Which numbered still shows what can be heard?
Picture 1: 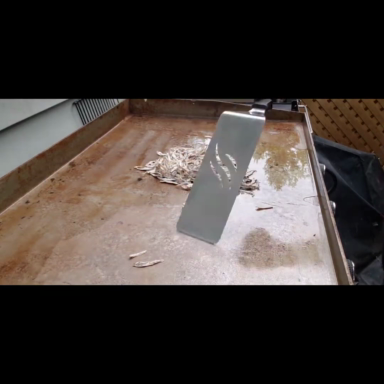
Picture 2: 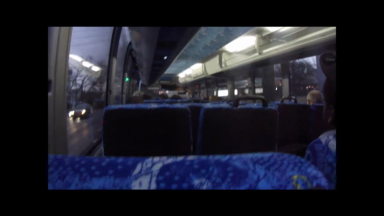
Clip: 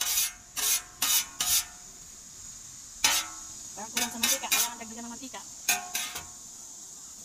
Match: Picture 1